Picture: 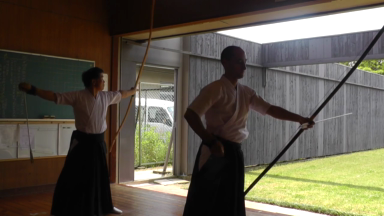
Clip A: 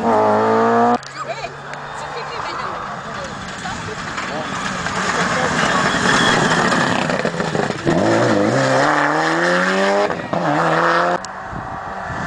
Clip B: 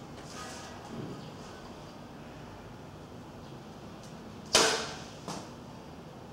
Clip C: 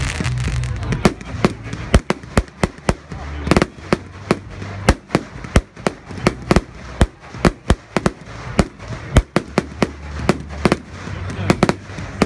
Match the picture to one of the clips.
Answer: B